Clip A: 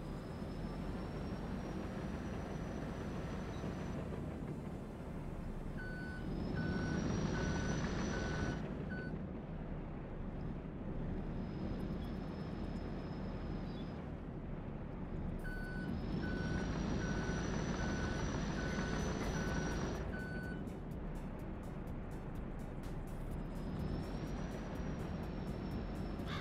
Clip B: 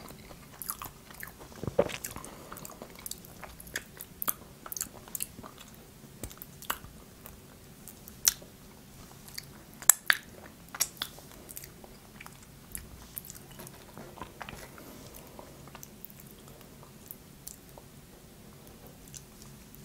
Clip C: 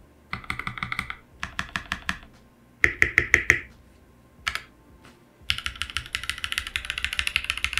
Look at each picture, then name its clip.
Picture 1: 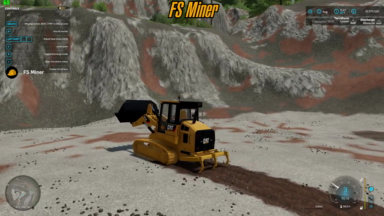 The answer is A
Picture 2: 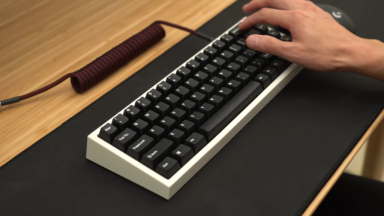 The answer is C